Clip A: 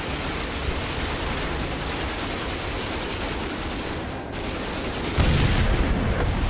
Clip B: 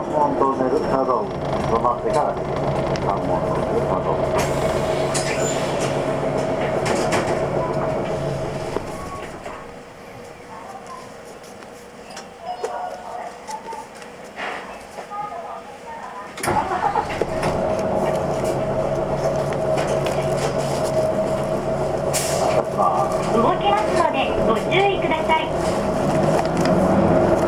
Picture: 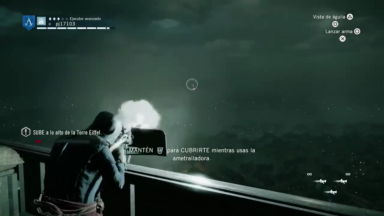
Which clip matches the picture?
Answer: A